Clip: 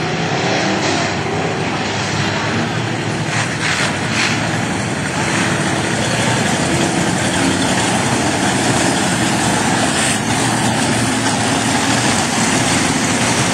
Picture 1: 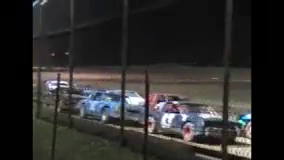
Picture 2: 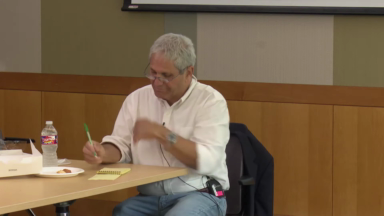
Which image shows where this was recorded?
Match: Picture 1